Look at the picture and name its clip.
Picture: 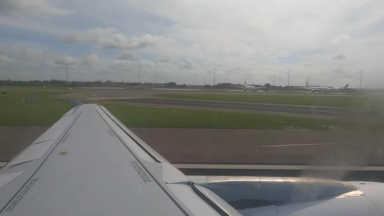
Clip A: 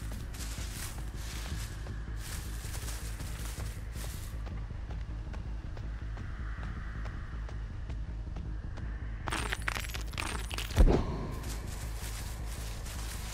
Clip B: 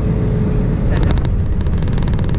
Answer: B